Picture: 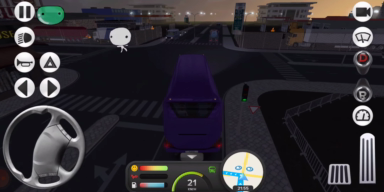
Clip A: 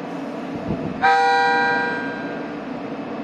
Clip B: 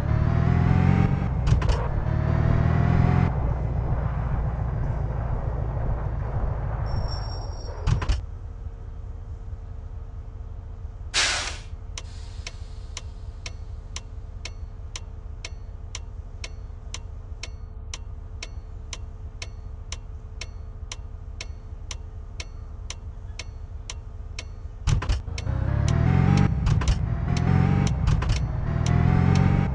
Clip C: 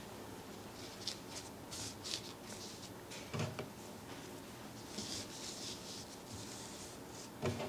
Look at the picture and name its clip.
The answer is B